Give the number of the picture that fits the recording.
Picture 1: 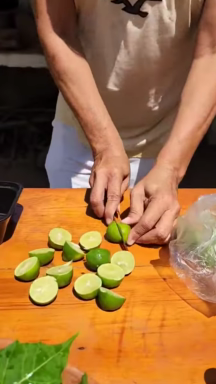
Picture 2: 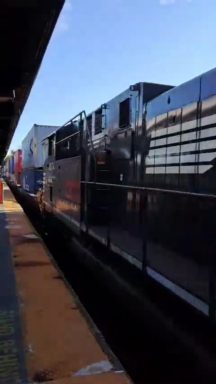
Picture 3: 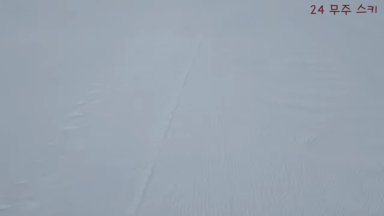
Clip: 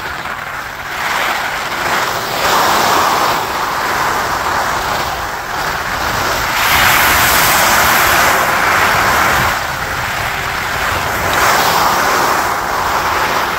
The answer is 3